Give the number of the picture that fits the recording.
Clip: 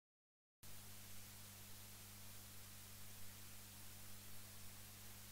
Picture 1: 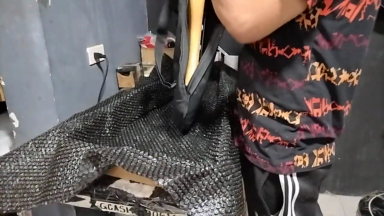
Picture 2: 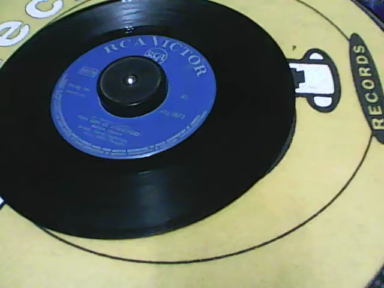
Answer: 2